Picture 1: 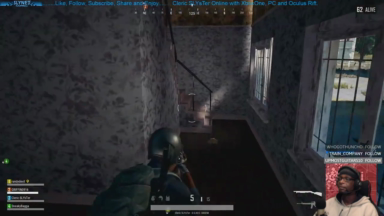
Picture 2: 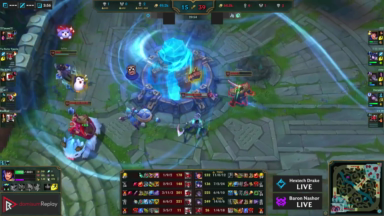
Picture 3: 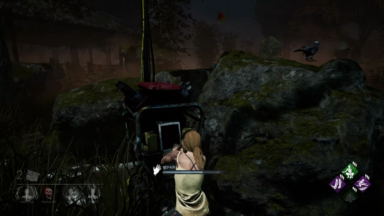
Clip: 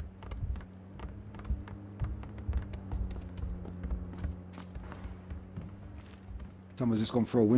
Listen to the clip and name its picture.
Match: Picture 1